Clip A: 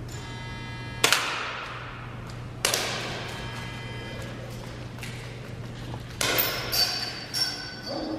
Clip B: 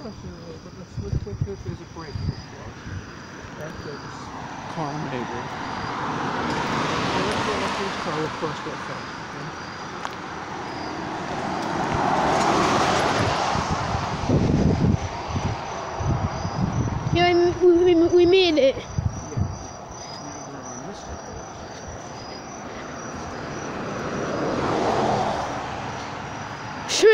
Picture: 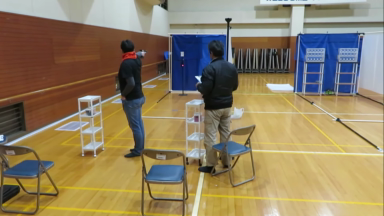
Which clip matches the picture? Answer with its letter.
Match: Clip A